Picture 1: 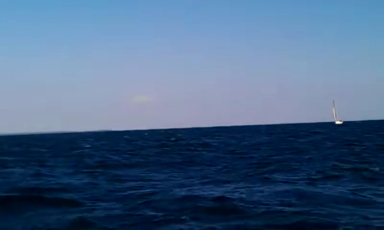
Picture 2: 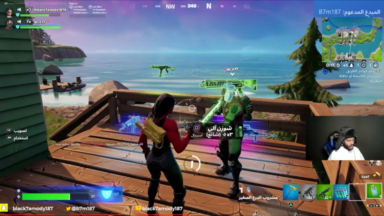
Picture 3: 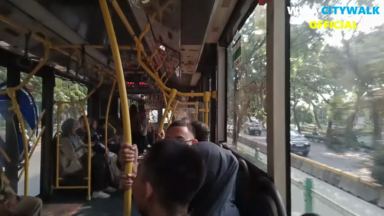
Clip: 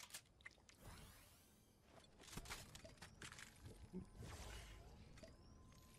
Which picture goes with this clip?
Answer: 2